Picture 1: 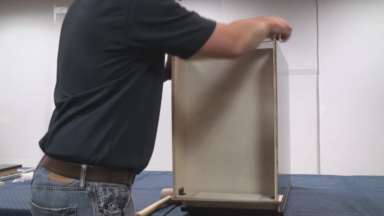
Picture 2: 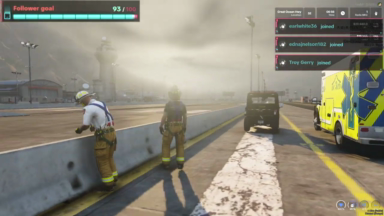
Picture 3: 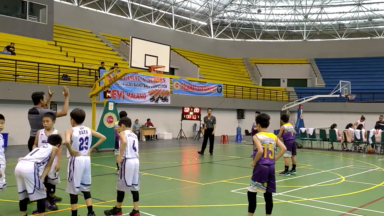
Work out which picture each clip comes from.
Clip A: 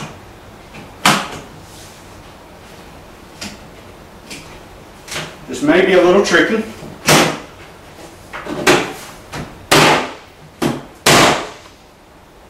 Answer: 1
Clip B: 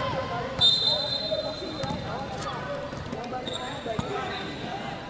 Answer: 3